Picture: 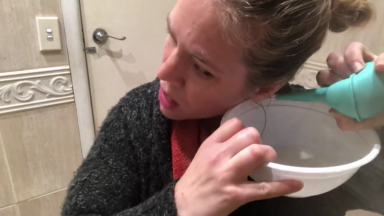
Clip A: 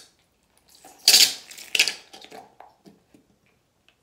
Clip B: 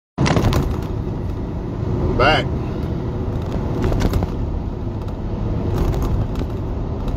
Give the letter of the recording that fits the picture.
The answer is A